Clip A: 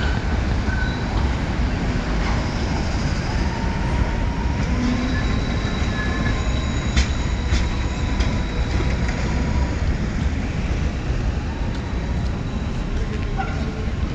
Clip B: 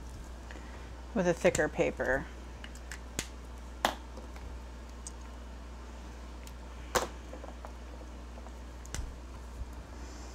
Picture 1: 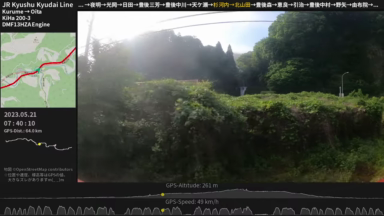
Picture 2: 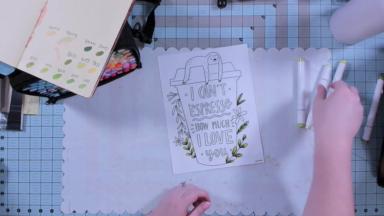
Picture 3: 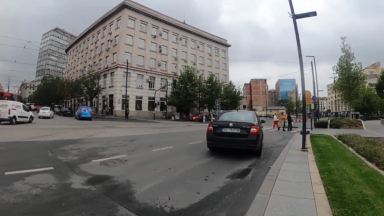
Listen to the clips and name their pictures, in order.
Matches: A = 3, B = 2